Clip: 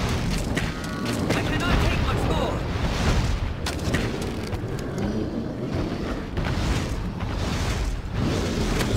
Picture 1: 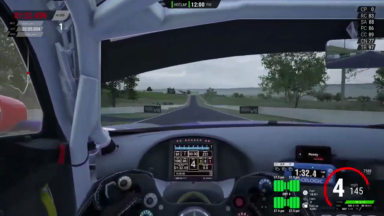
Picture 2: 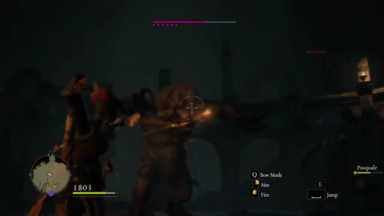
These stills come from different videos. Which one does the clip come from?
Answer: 2